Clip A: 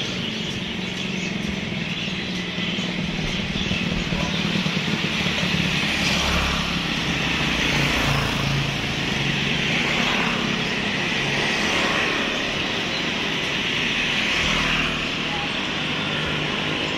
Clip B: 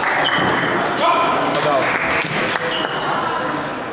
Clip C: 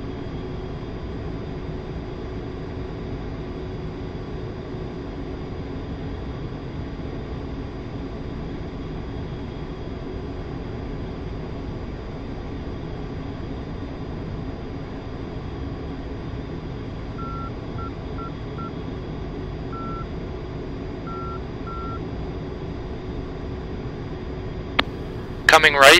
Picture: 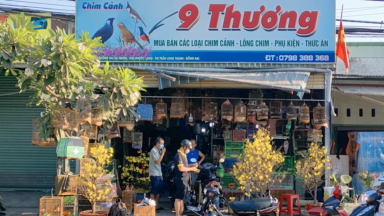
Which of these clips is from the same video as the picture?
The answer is A